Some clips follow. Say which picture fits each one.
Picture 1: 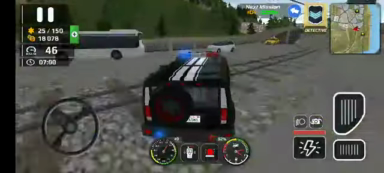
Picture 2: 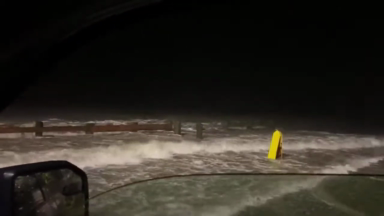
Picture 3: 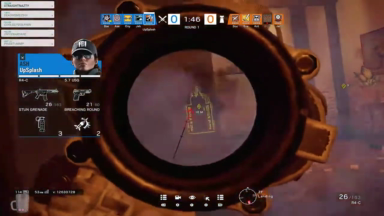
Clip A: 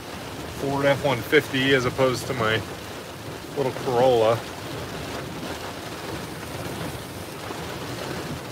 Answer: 2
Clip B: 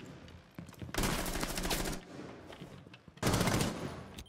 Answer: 3